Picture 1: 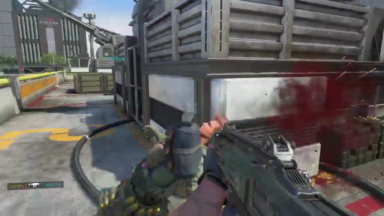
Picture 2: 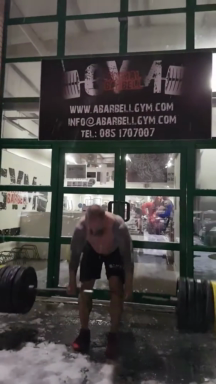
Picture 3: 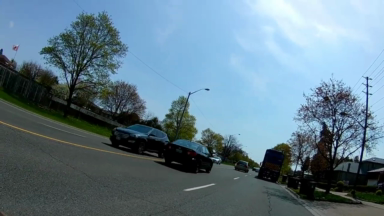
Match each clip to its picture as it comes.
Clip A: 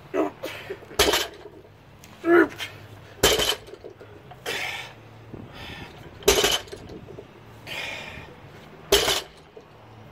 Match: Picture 2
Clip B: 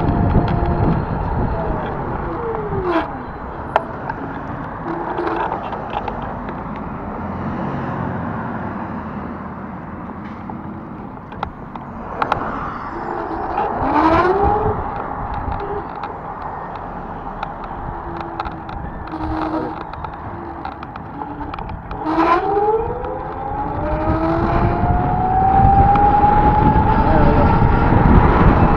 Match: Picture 3